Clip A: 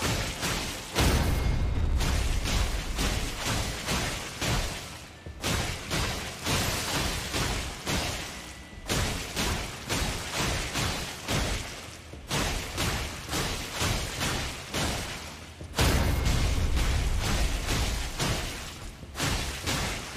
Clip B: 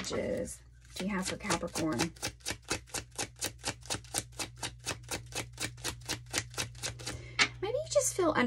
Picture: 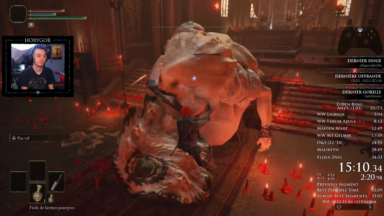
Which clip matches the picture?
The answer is A